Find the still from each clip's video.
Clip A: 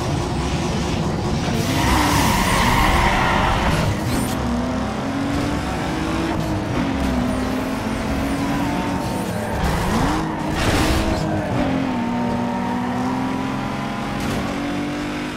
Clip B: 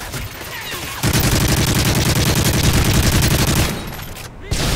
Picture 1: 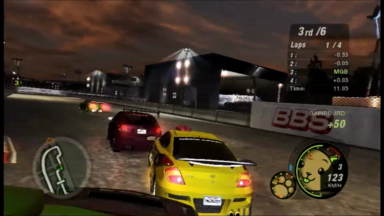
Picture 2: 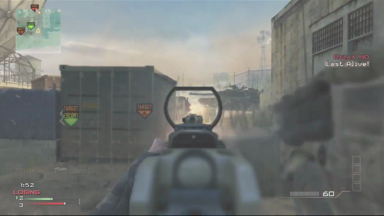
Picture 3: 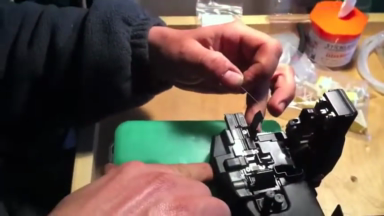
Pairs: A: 1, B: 2